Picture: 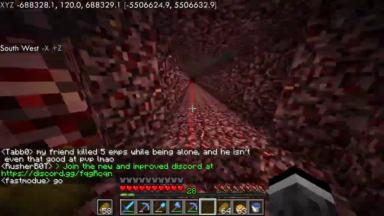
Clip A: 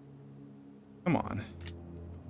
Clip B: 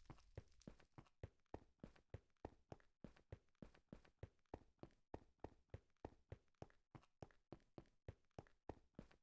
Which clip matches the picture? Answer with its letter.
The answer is B